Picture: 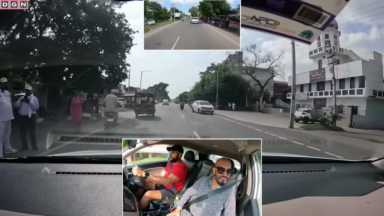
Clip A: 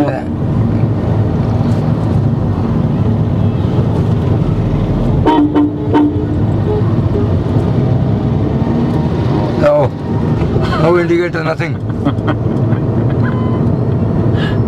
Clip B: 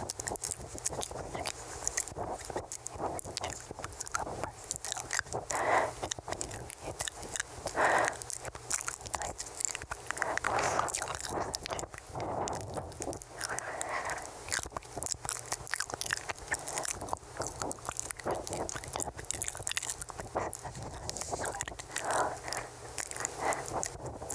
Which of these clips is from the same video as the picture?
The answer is A